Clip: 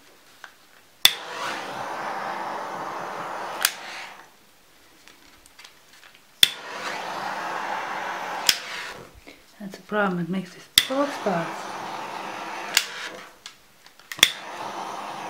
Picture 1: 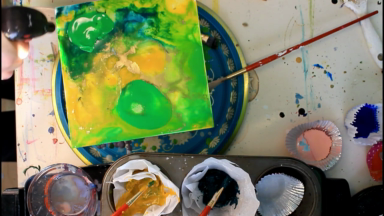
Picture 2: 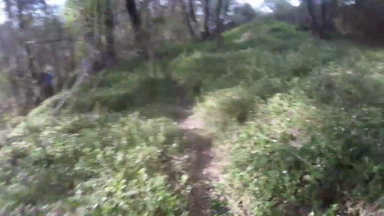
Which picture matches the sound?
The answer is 1